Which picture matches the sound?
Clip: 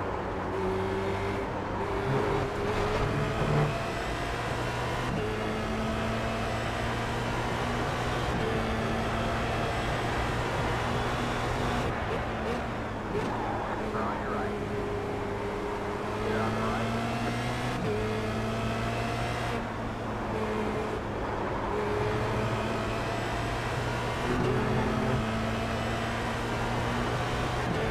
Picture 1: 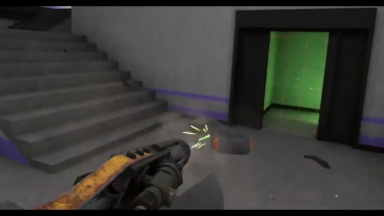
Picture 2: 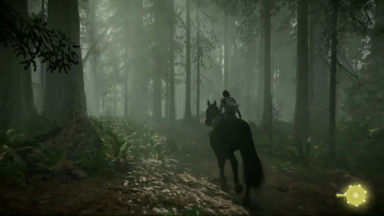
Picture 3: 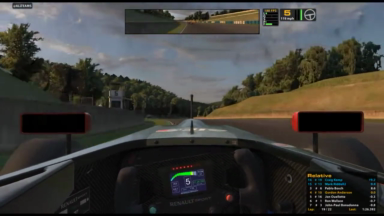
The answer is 3